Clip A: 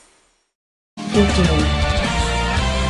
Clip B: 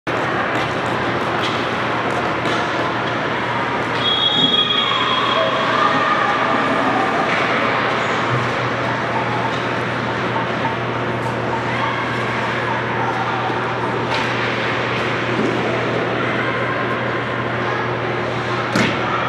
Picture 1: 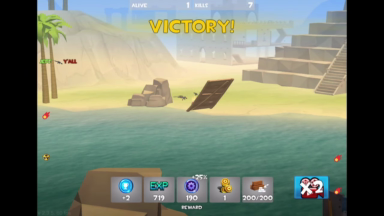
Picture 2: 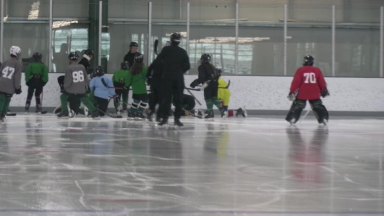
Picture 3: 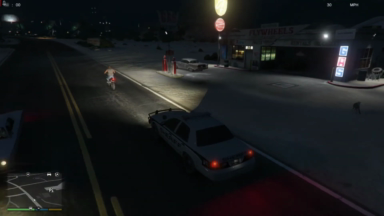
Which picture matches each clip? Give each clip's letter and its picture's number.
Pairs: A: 1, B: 2